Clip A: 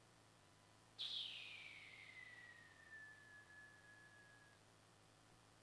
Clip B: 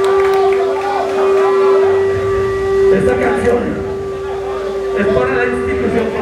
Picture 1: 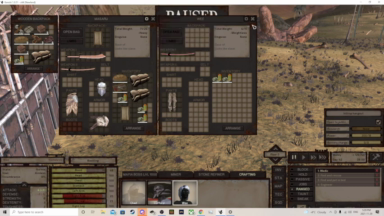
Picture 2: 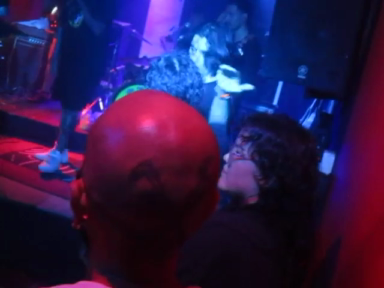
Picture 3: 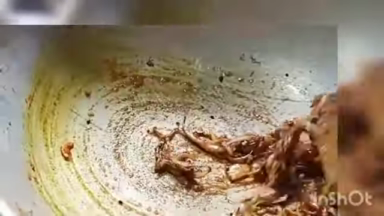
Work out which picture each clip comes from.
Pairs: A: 1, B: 2